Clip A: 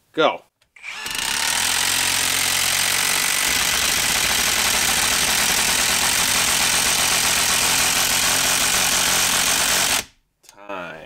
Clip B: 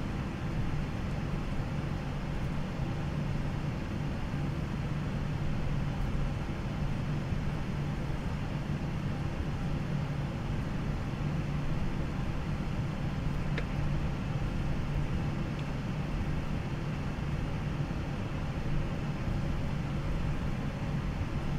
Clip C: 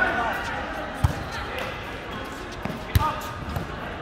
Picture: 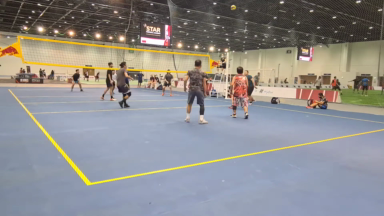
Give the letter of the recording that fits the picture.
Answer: C